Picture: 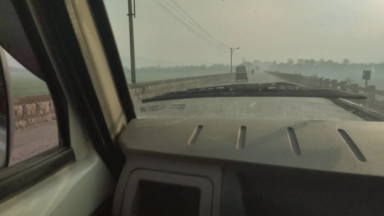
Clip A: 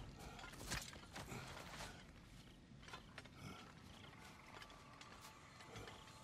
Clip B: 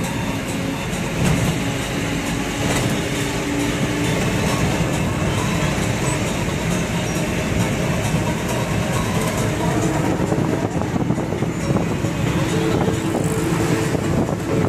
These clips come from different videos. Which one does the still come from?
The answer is B